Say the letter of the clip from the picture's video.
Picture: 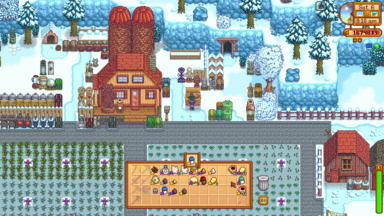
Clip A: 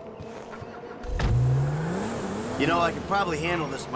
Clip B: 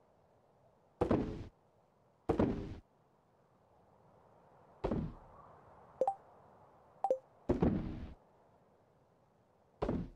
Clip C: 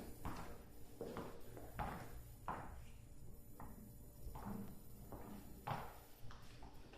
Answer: B